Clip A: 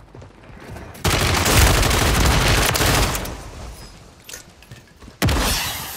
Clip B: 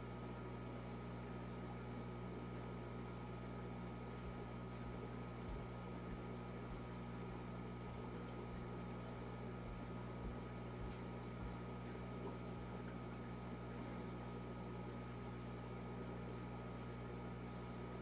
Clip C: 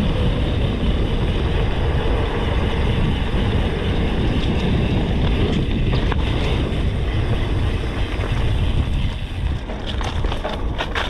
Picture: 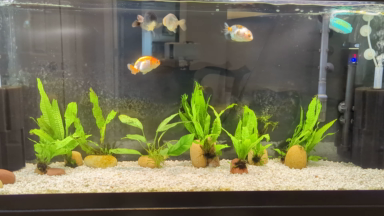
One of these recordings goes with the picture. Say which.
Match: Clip B